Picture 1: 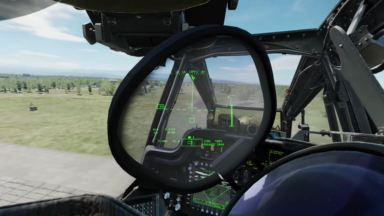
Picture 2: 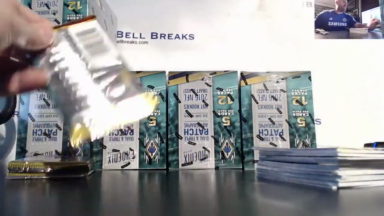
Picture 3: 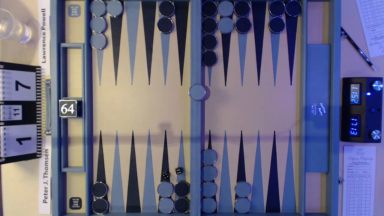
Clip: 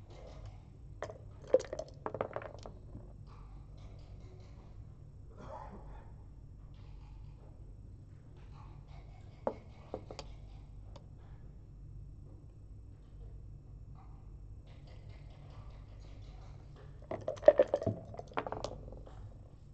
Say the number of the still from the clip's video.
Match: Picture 3